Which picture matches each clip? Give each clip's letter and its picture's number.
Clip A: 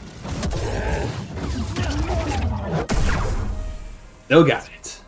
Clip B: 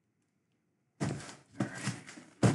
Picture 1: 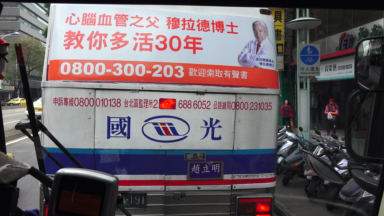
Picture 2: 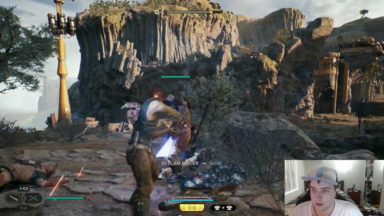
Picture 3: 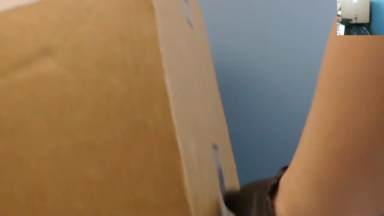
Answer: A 2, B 3